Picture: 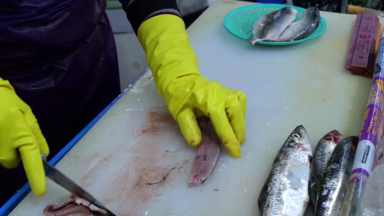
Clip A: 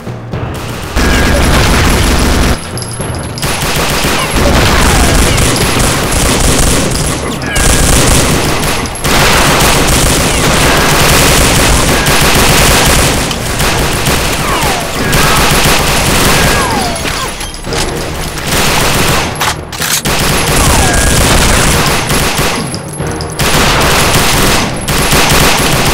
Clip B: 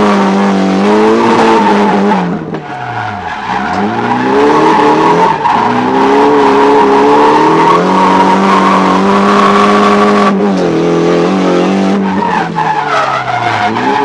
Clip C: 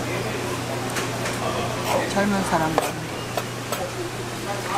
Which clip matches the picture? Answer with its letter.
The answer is C